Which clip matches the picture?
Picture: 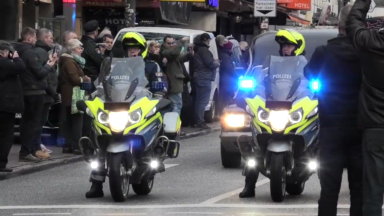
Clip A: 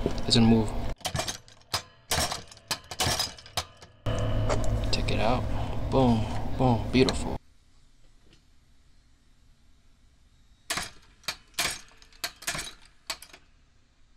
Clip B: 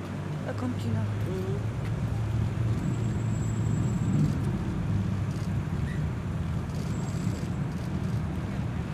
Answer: B